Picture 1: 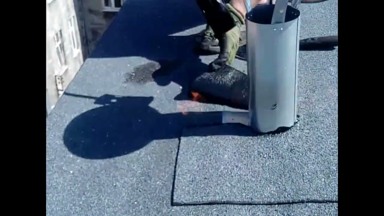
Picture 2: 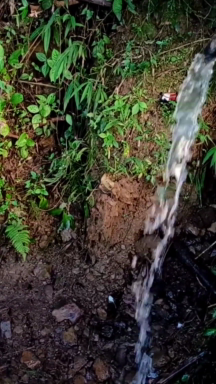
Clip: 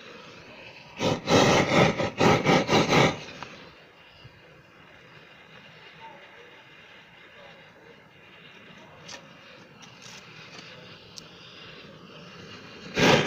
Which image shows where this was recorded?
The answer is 1